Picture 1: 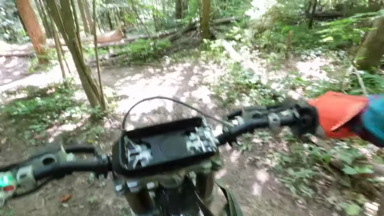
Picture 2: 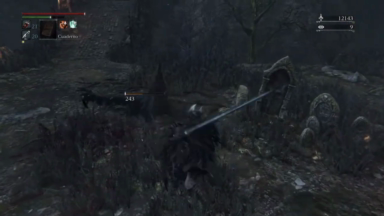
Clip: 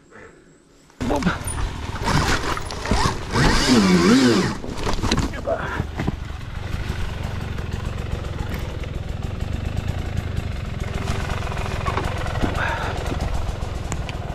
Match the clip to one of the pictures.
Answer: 1